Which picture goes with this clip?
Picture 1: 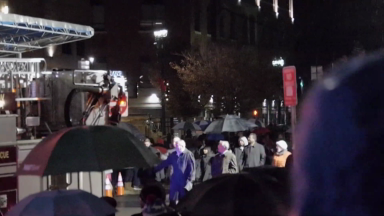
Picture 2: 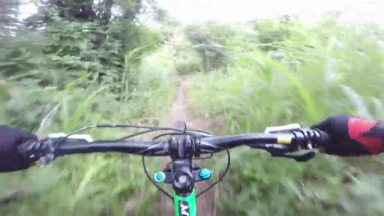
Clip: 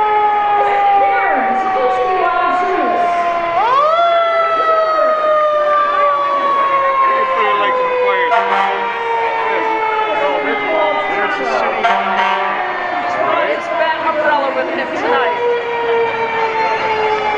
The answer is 1